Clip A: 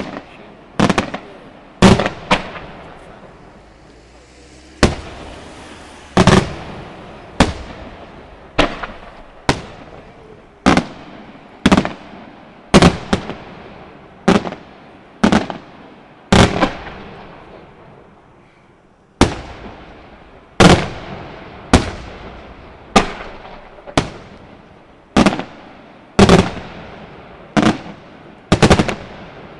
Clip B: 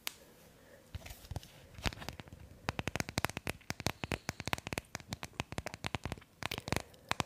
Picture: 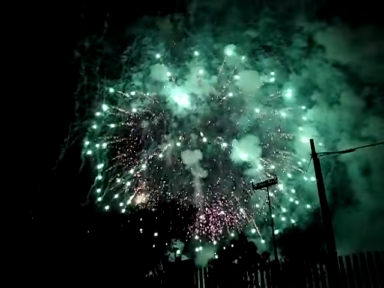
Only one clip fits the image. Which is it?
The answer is A